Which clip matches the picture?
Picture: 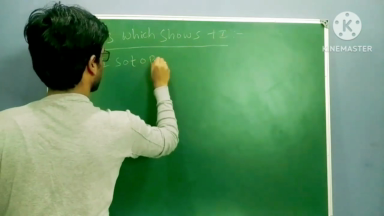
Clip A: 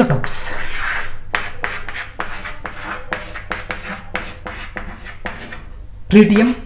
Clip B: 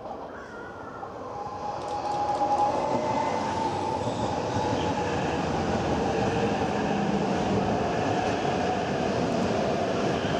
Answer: A